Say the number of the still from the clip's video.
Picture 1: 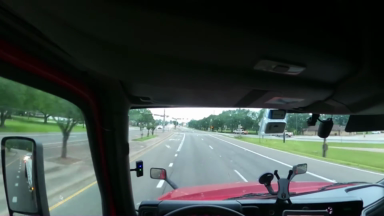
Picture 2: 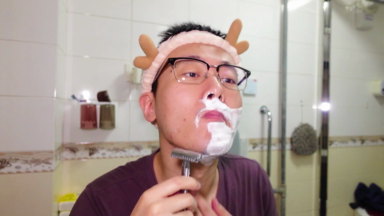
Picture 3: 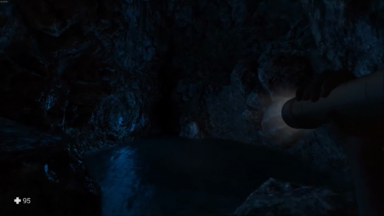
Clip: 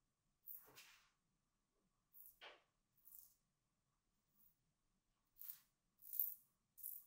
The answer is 2